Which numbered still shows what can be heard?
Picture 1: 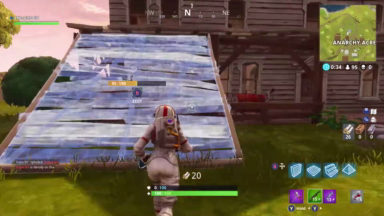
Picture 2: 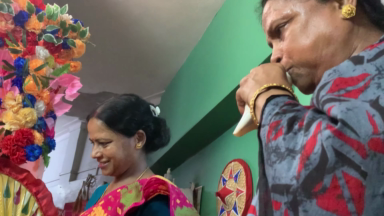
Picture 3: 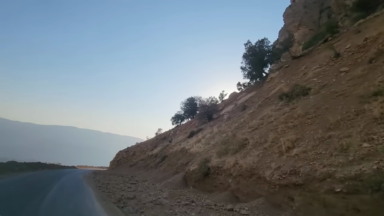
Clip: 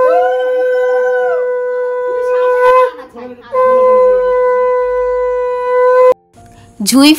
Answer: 2